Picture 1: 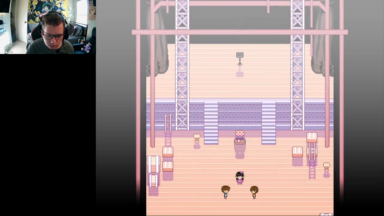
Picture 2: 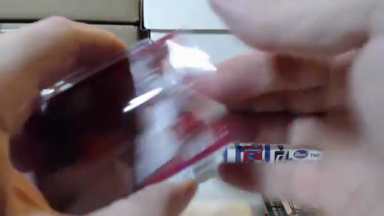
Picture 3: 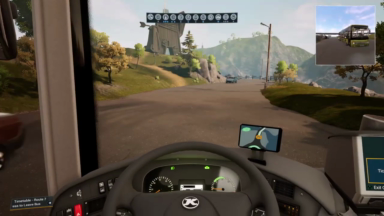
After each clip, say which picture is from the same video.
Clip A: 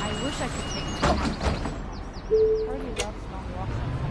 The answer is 3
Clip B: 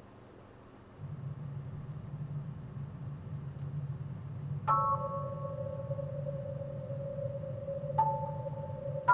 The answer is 1